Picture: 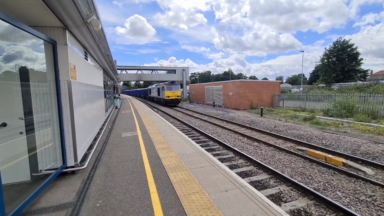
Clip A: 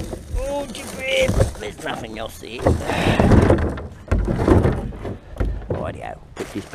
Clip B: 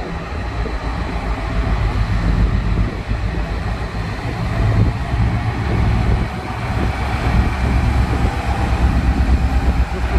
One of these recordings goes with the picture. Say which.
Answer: B